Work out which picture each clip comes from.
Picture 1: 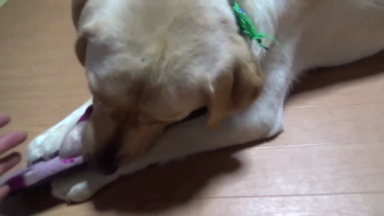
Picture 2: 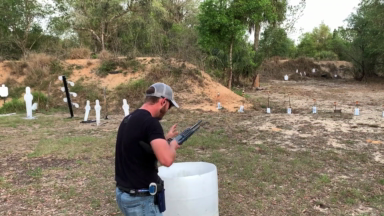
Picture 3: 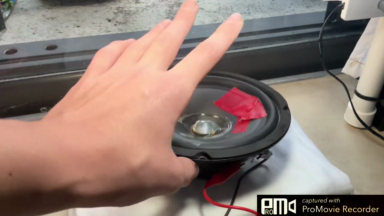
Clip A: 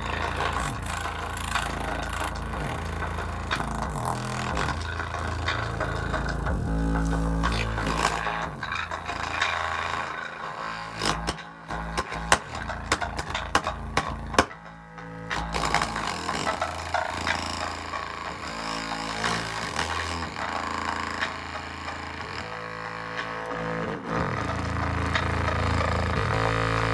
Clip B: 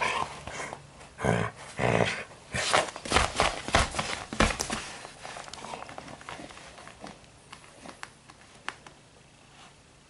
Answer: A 3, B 1